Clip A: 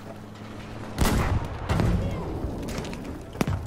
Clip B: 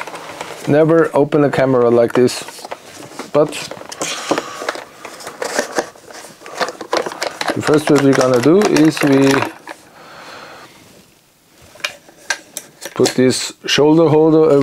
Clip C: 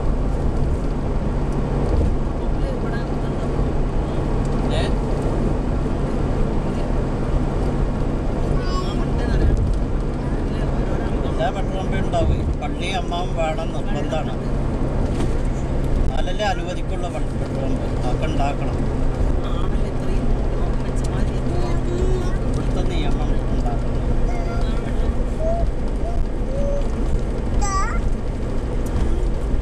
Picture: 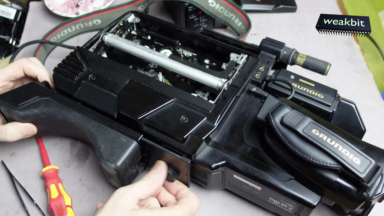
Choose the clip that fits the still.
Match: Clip B